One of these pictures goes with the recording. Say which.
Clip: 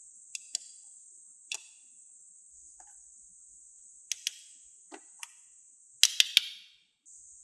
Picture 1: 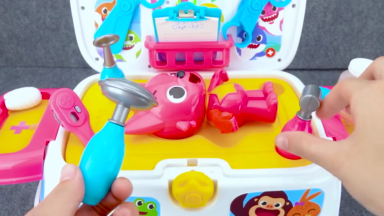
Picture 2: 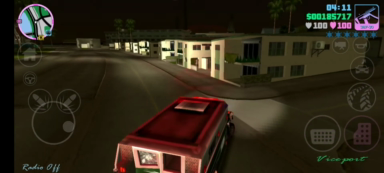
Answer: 1